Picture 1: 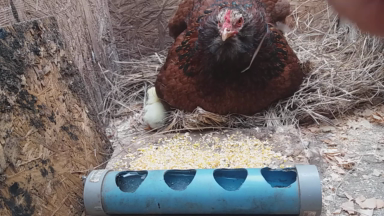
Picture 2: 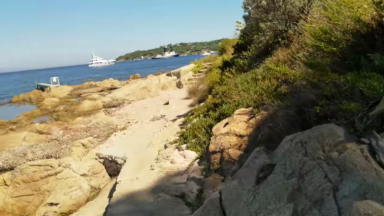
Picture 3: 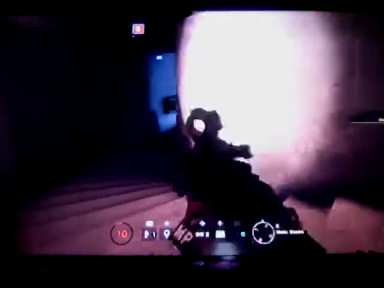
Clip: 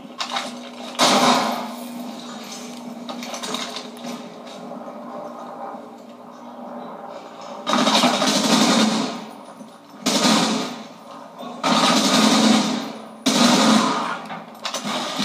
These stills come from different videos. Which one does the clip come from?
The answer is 3